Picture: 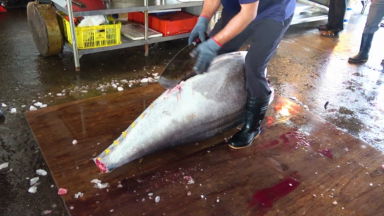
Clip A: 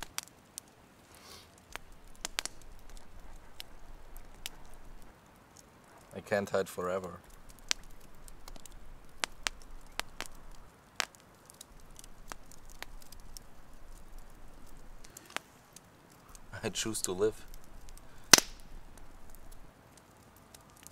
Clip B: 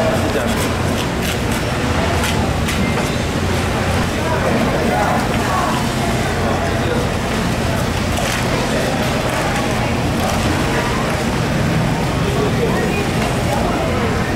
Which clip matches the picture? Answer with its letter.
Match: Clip B